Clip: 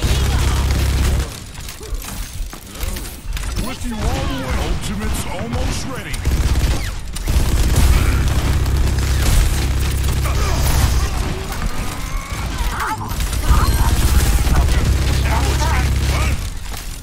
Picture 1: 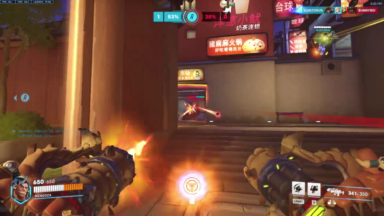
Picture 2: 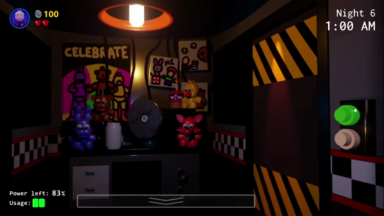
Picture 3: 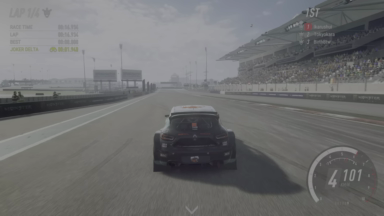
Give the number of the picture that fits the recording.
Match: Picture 1